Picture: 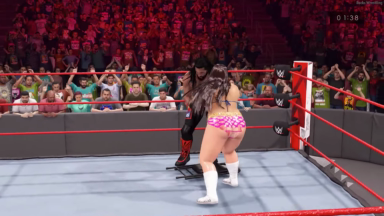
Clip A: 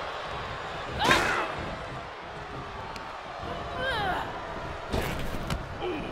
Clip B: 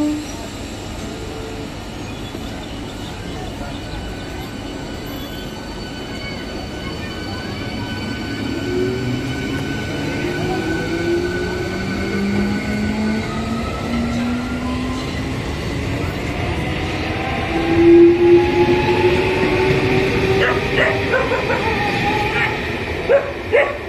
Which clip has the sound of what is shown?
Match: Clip A